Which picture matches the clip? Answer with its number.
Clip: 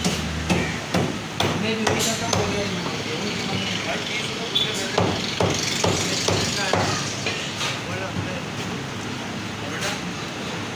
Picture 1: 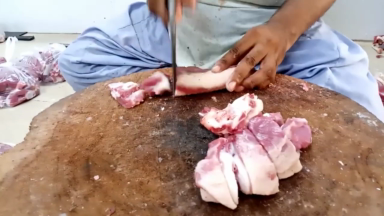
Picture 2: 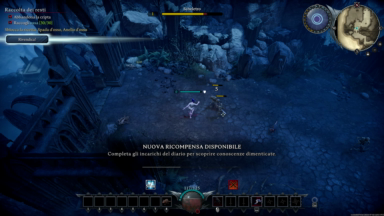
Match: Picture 1